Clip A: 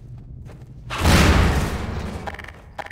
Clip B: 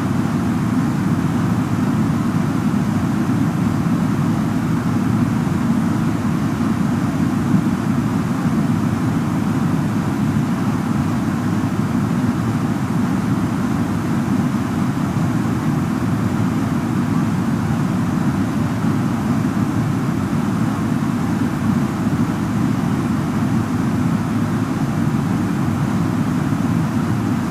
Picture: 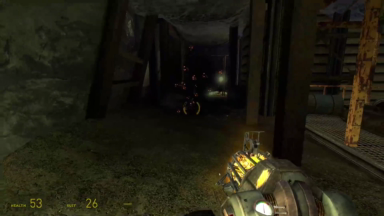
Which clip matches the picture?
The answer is A